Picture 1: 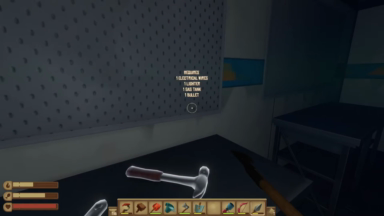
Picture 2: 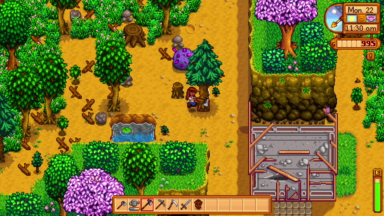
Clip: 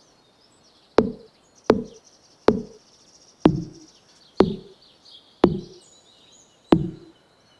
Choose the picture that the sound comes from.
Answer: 2